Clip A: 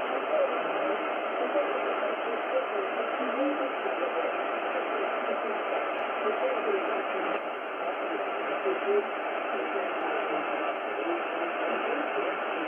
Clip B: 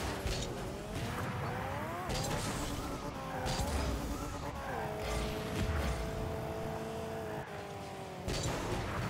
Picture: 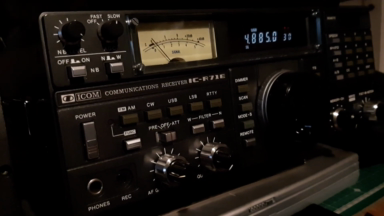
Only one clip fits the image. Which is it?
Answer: A